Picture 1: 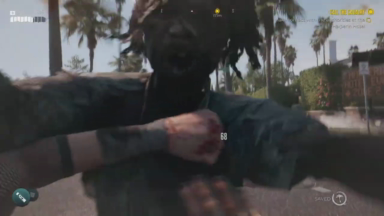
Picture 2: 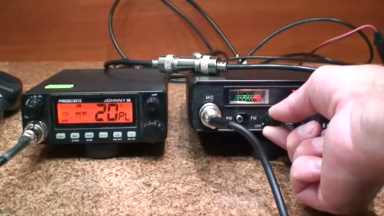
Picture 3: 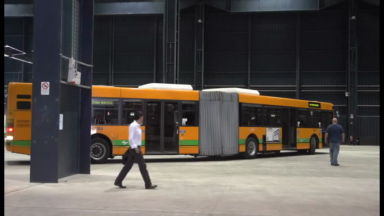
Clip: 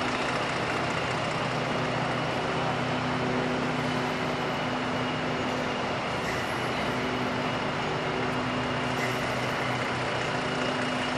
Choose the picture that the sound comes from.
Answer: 3